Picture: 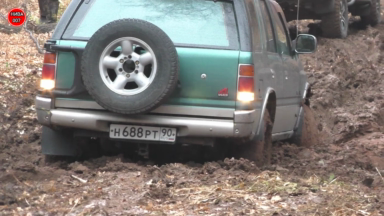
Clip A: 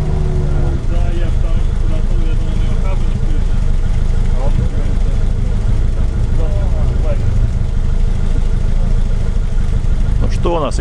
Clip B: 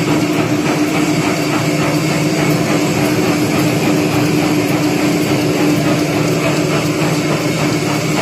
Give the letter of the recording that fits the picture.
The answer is A